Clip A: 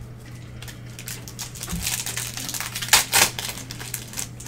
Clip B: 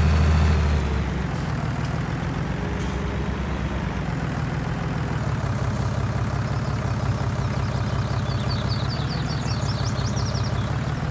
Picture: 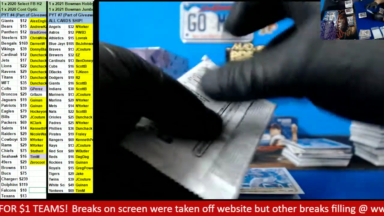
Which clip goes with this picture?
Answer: A